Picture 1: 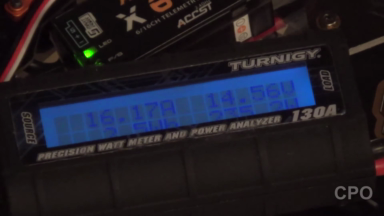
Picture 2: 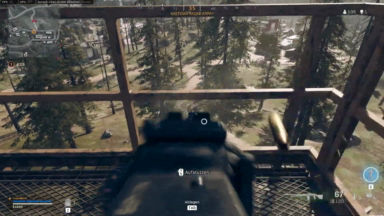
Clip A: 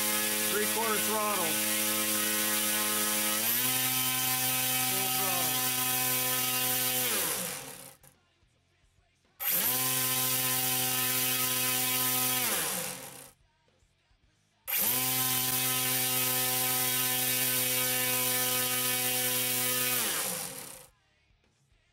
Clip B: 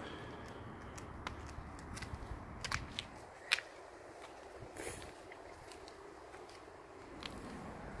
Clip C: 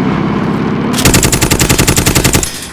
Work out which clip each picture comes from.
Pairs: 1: A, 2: C